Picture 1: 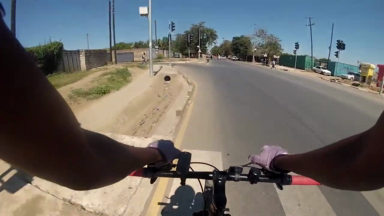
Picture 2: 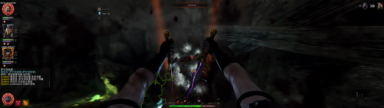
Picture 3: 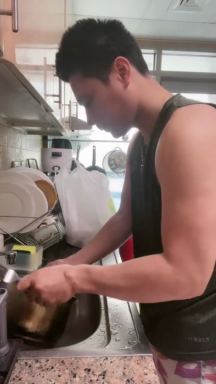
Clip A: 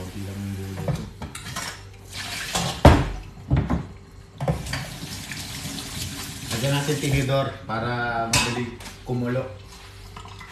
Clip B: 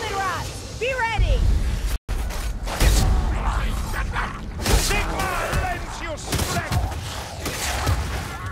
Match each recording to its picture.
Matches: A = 3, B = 2